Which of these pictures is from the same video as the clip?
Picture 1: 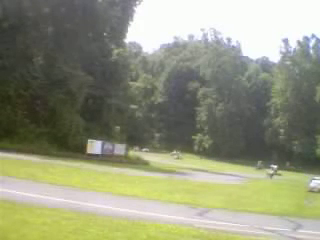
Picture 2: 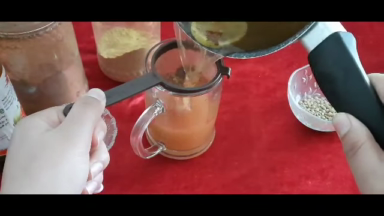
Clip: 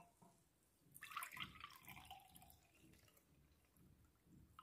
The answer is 2